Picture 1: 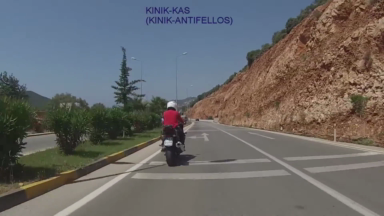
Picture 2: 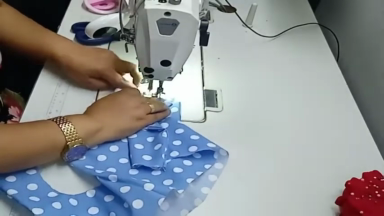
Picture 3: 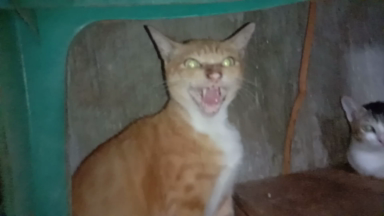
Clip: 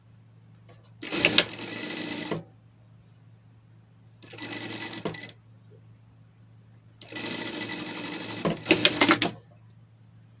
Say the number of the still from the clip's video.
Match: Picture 2